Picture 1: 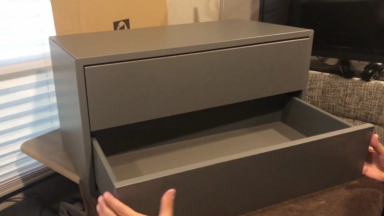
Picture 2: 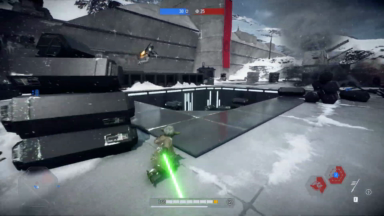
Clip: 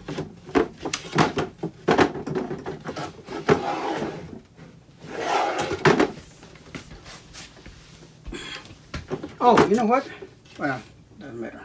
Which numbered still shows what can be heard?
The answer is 1